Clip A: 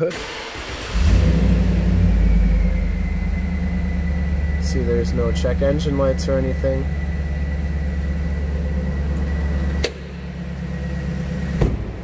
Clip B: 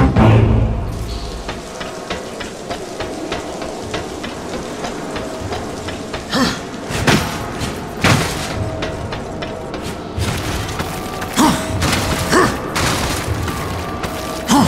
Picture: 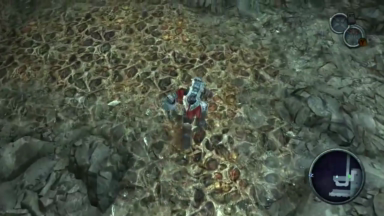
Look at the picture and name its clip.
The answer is B